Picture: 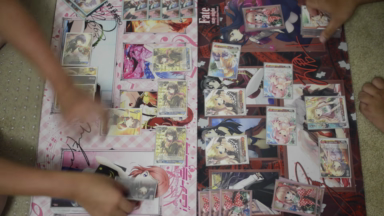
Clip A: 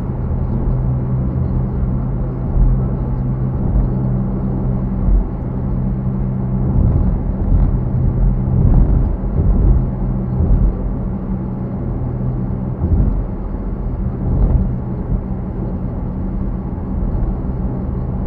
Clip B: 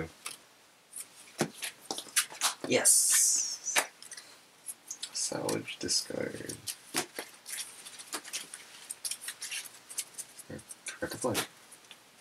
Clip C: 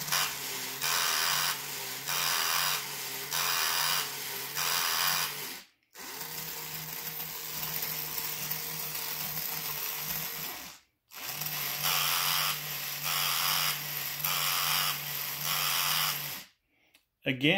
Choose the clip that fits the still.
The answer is B